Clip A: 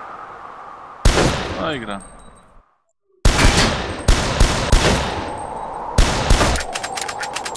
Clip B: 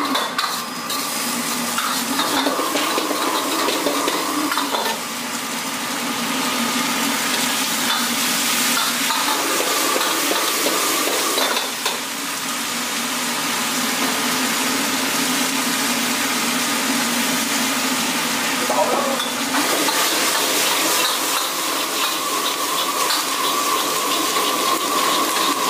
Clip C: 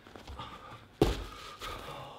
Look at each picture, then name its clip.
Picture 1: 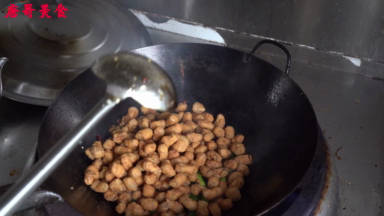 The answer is B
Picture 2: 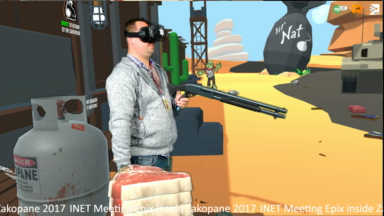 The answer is A